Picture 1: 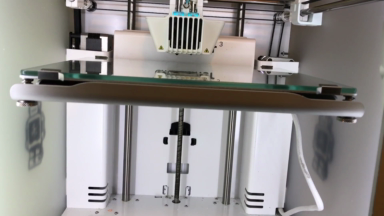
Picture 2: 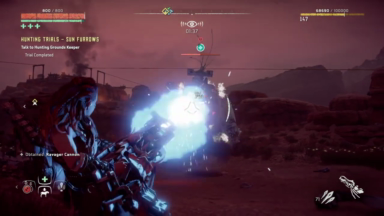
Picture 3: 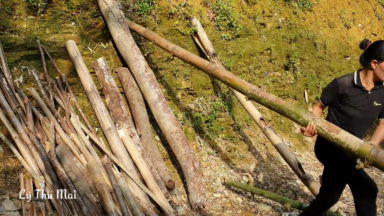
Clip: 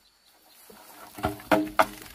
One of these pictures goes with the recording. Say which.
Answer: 3